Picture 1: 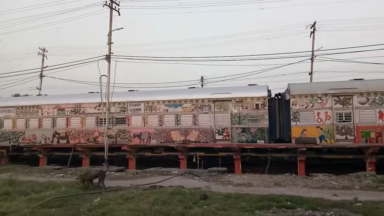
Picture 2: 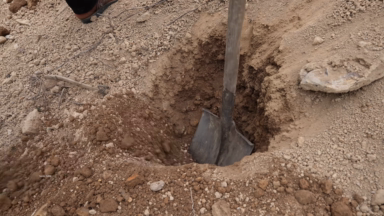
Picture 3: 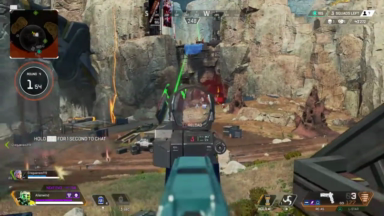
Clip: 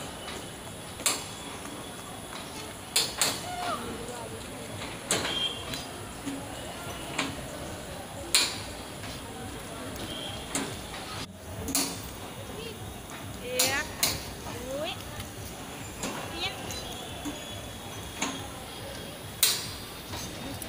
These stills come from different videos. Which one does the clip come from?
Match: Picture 1